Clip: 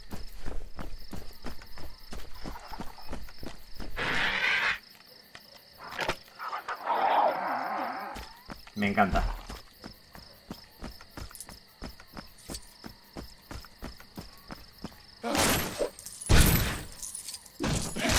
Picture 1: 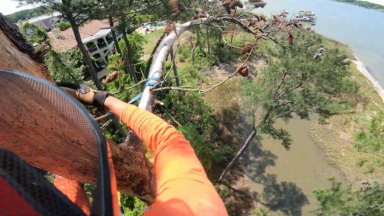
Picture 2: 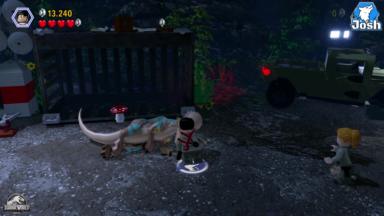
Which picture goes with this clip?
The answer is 2